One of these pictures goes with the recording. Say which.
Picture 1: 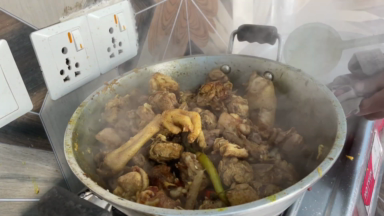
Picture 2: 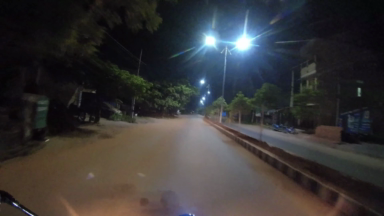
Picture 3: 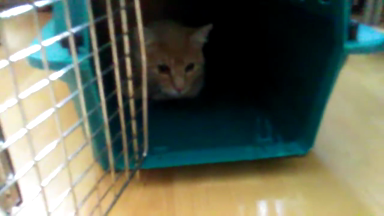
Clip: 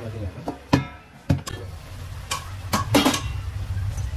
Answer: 1